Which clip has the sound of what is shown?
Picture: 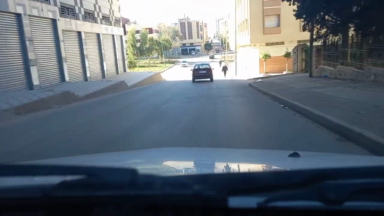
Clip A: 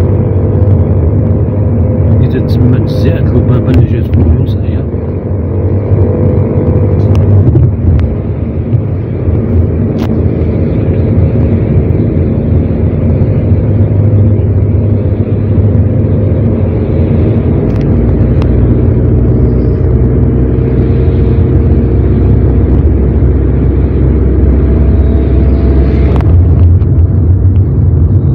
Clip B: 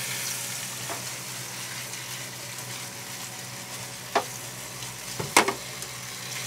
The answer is A